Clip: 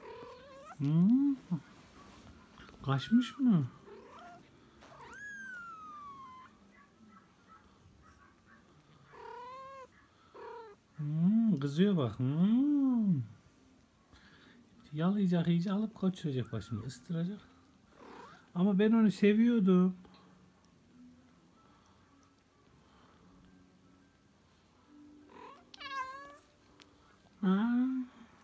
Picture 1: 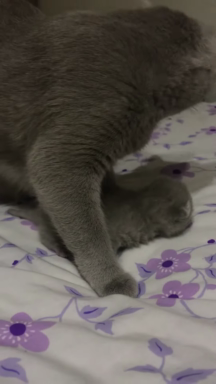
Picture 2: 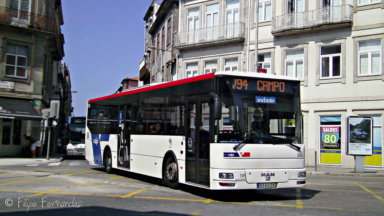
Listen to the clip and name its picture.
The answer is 1